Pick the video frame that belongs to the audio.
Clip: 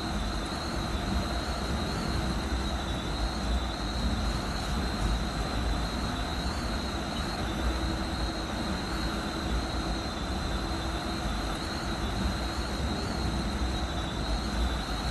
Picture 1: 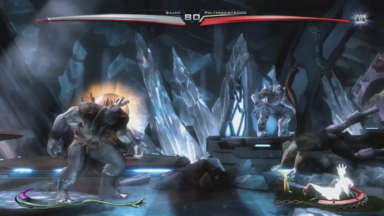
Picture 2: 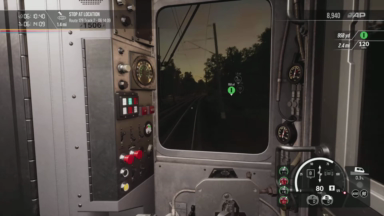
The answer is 2